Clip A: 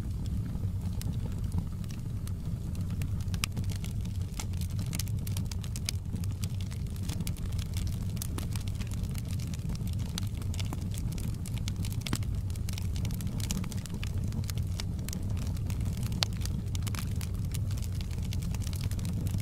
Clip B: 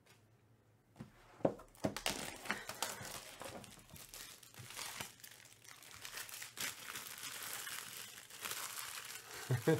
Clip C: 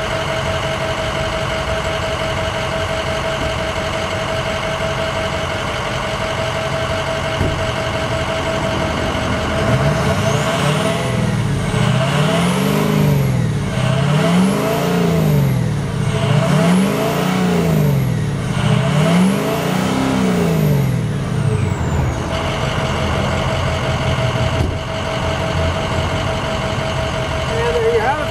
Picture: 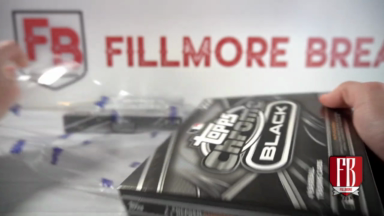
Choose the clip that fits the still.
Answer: B